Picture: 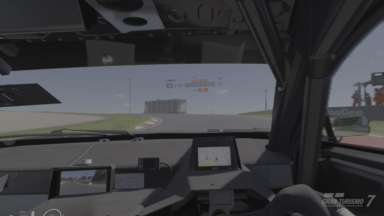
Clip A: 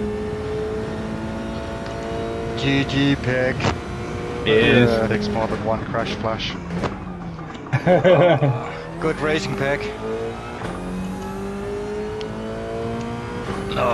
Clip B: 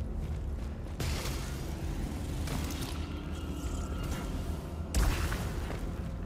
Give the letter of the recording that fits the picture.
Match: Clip A